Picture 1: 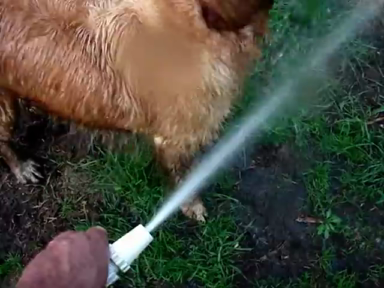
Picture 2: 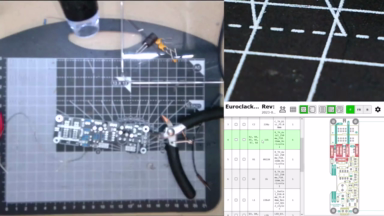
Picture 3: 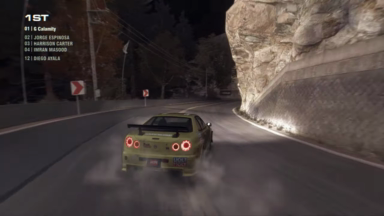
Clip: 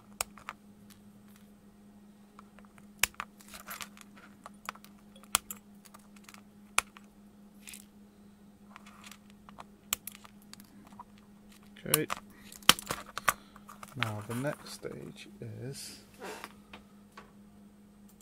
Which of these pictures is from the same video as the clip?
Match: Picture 2